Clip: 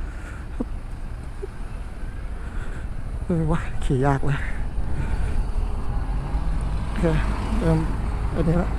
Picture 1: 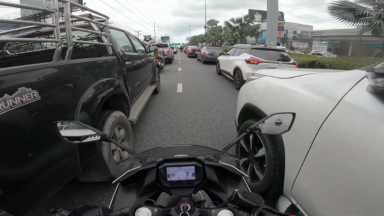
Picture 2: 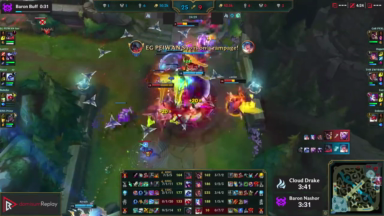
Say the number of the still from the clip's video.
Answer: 1